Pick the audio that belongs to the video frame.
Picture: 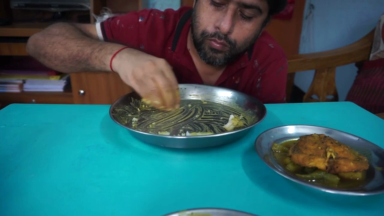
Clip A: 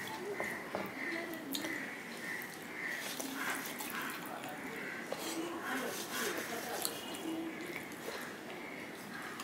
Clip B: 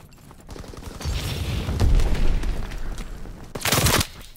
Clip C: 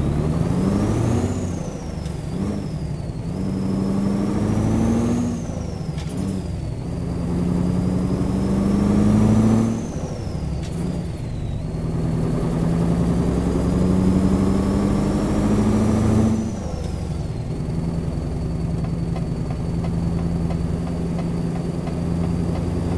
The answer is A